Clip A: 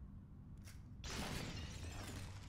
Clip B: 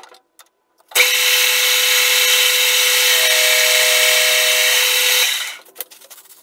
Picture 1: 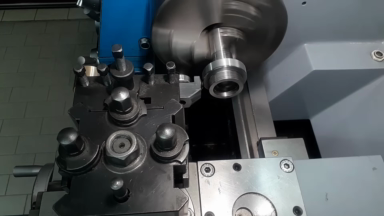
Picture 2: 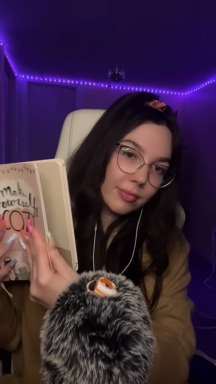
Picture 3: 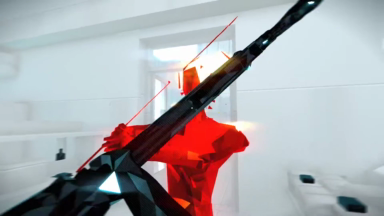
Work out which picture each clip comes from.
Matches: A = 3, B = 1